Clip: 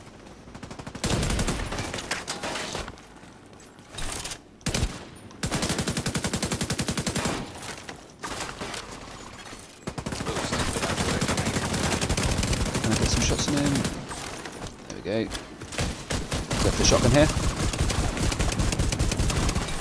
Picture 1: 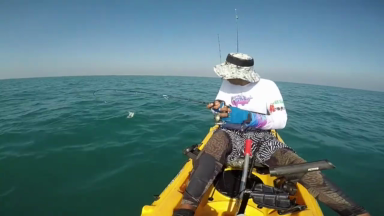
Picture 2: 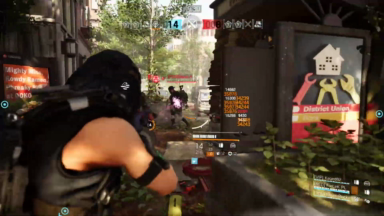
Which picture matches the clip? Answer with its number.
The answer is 2